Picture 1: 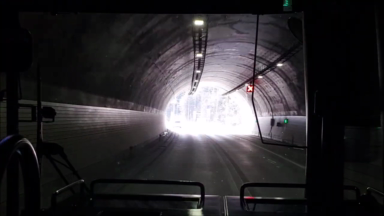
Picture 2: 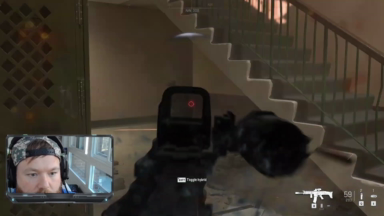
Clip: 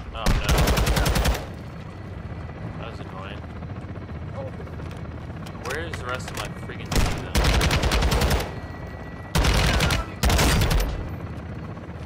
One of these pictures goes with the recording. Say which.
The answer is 2